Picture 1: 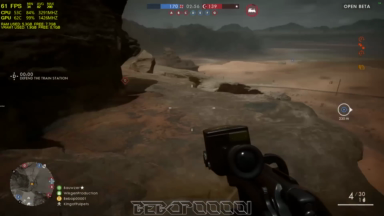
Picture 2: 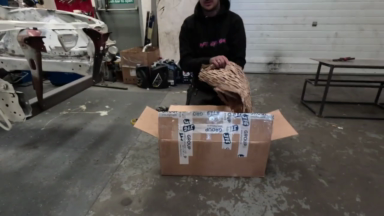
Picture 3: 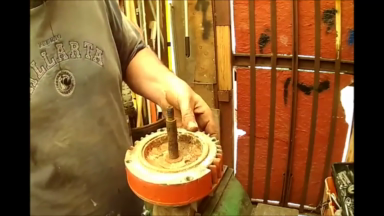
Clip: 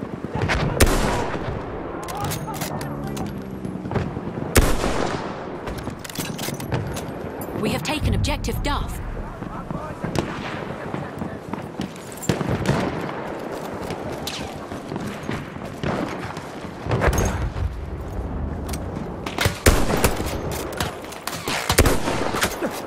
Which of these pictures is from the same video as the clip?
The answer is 1